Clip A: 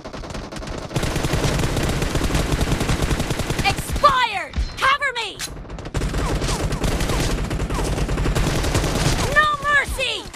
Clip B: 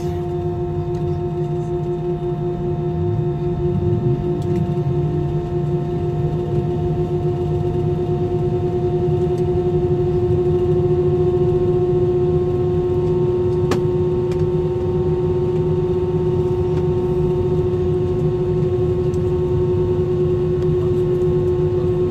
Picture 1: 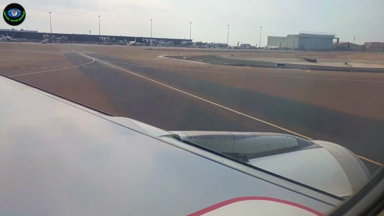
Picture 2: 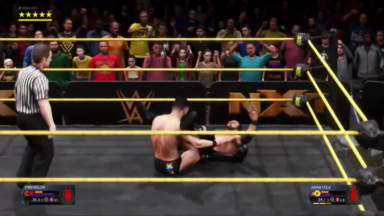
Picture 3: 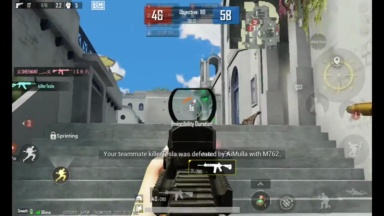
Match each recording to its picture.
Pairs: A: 3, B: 1